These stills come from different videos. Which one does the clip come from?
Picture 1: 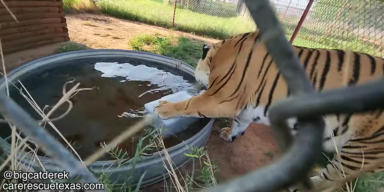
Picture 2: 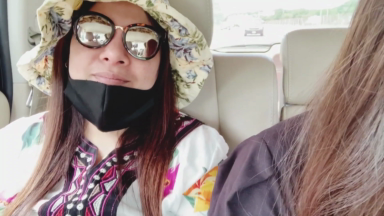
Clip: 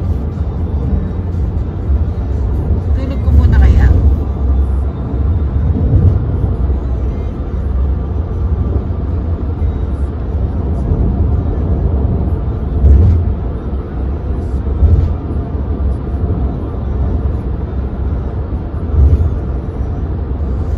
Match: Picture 2